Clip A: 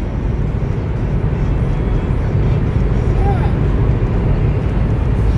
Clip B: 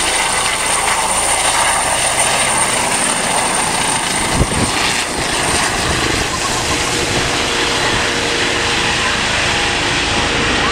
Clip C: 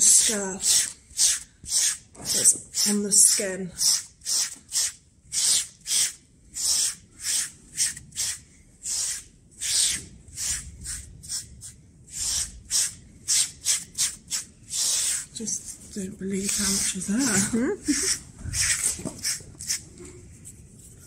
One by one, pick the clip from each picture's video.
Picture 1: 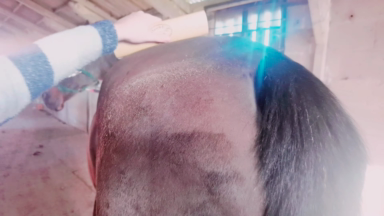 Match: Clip C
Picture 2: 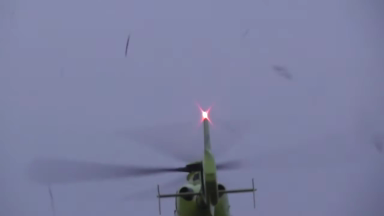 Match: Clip B